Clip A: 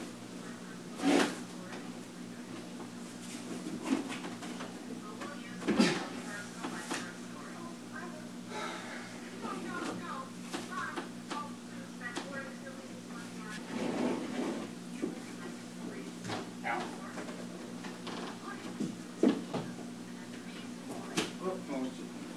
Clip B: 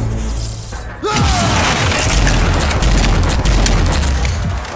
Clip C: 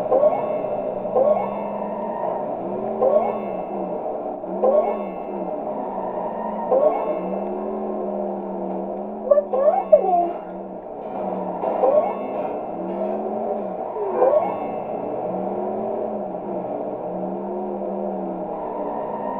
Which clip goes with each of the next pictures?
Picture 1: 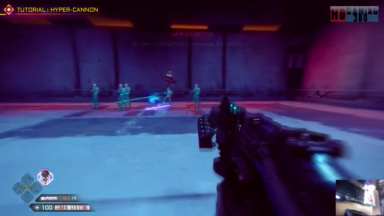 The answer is B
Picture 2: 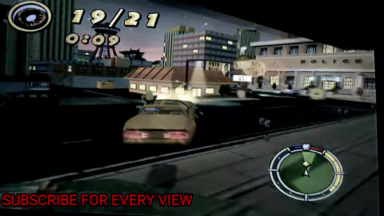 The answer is C